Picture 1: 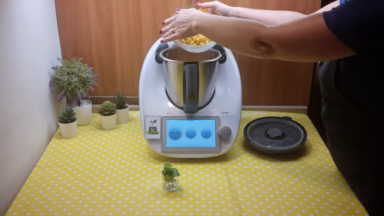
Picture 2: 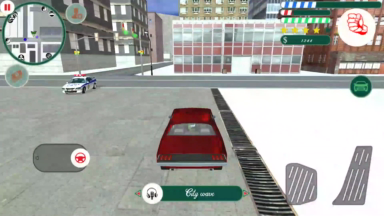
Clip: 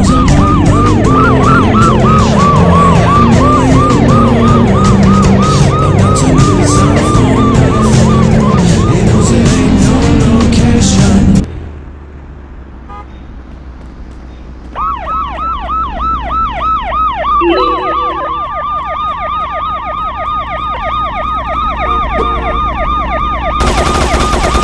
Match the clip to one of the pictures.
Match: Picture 2